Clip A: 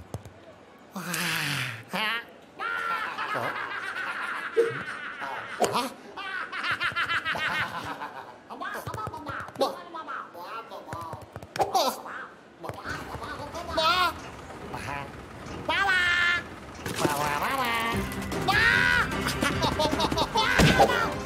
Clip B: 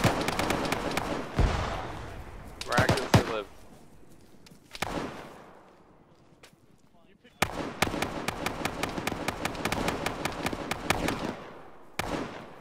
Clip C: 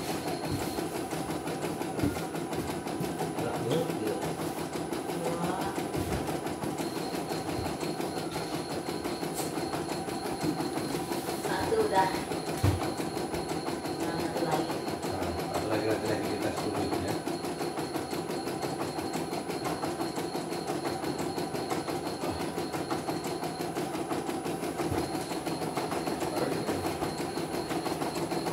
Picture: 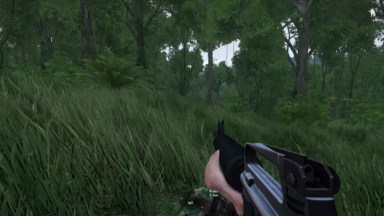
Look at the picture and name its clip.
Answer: B